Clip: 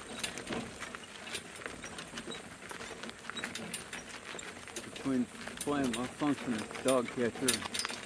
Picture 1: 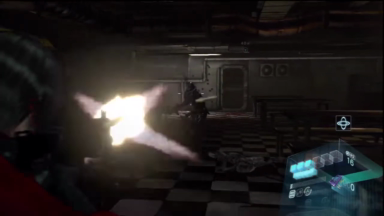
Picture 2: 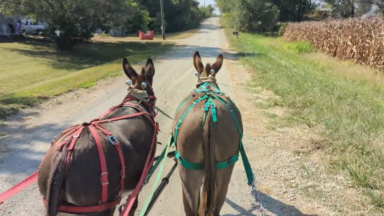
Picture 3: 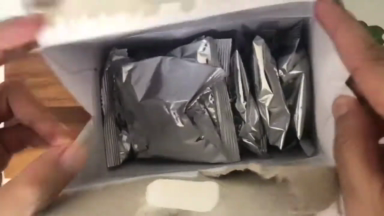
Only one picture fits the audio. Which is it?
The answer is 2